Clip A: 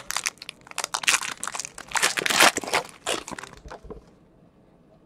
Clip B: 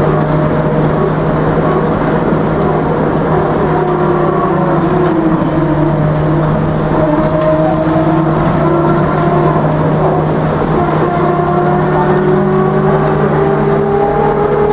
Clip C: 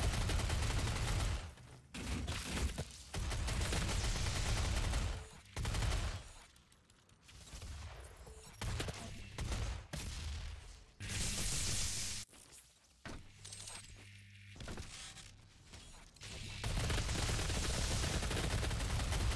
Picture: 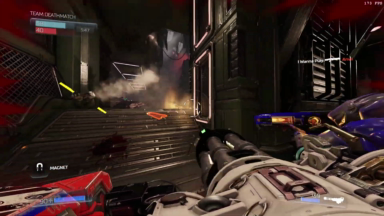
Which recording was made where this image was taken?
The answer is C